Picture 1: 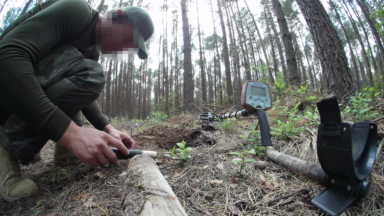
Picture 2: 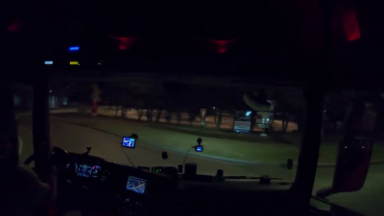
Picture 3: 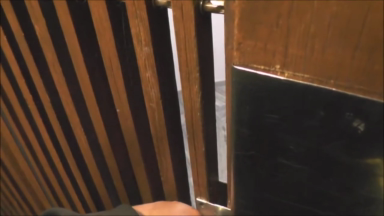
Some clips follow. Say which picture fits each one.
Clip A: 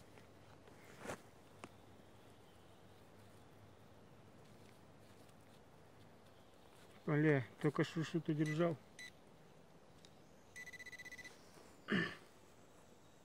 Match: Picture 1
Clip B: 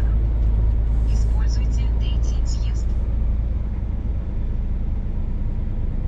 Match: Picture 2